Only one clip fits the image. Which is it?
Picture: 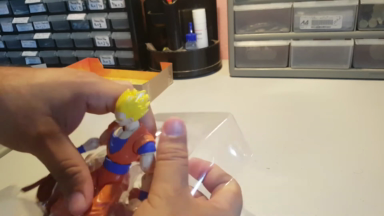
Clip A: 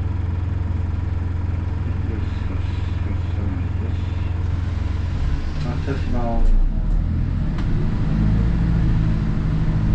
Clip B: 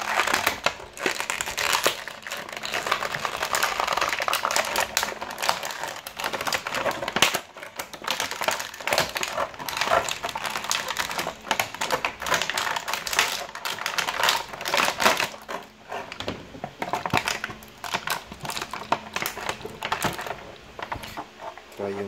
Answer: B